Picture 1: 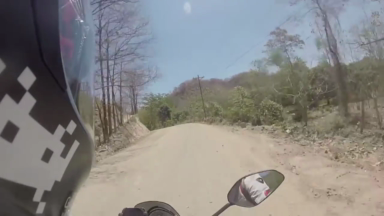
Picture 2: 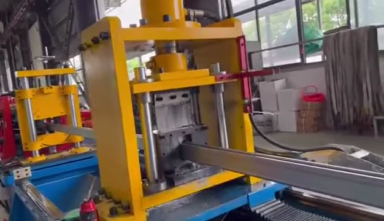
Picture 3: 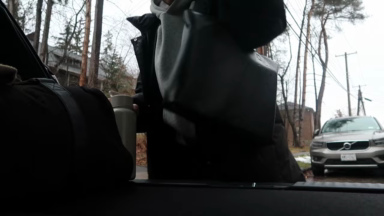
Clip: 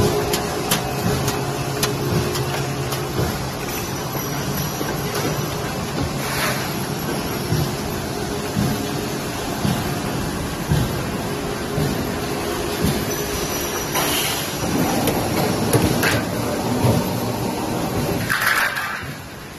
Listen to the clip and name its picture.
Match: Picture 2